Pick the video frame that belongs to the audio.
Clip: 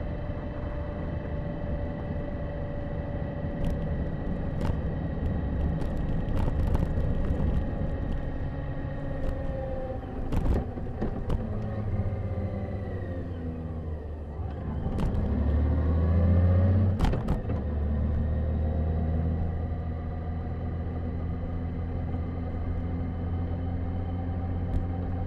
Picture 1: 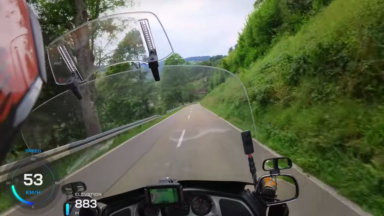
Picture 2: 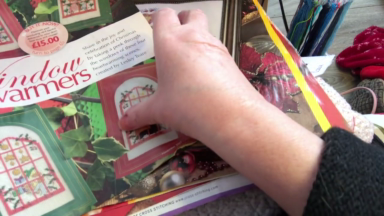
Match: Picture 1